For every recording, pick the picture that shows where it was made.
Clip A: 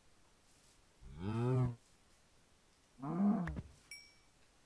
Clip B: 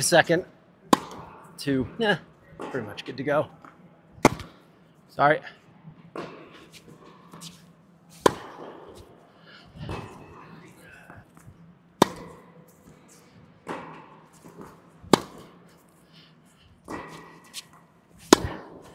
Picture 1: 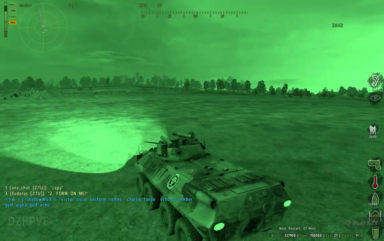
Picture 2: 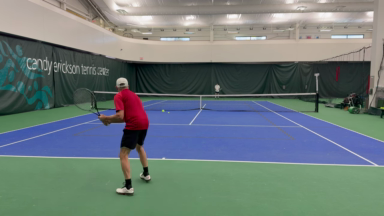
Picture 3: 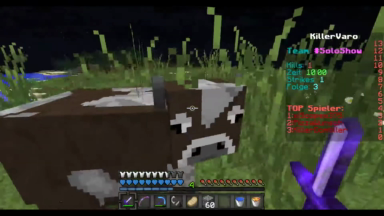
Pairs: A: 3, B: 2